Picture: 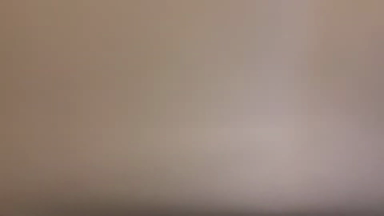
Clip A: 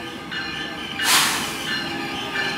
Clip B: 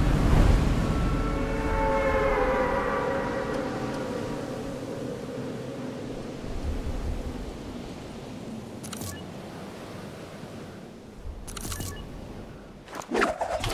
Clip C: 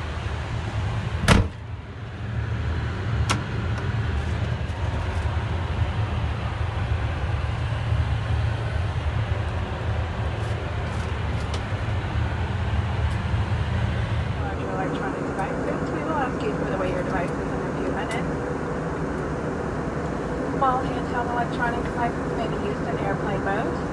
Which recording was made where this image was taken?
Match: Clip C